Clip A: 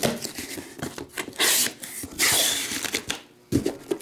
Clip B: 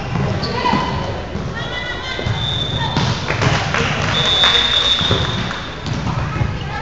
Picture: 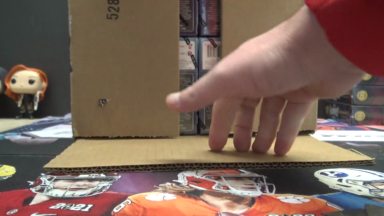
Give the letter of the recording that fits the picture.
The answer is A